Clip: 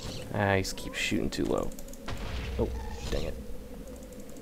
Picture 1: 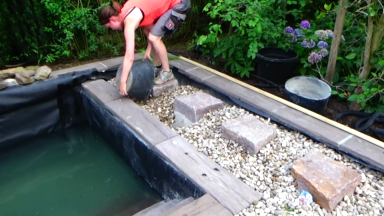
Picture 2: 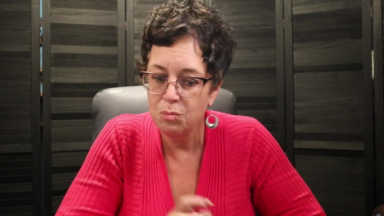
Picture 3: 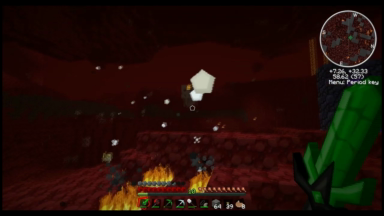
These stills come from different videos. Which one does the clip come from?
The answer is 3